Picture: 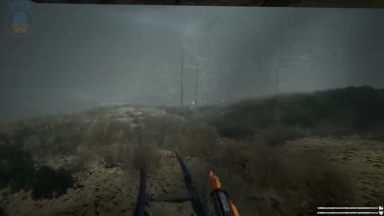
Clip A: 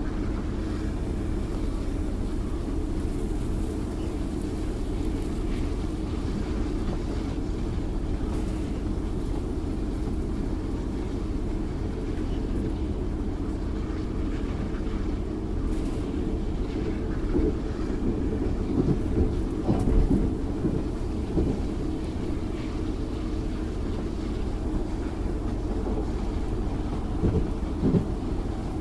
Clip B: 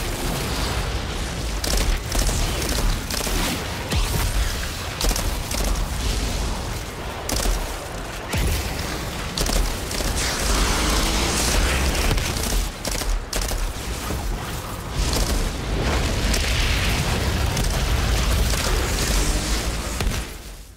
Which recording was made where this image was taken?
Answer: A